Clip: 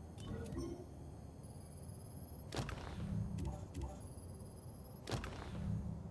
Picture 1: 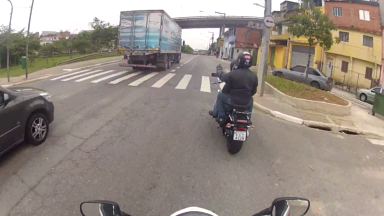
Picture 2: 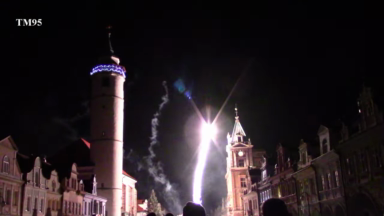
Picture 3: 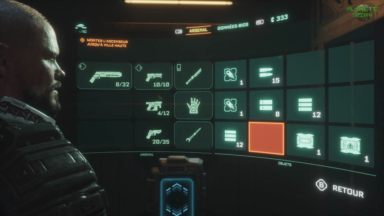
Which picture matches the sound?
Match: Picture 3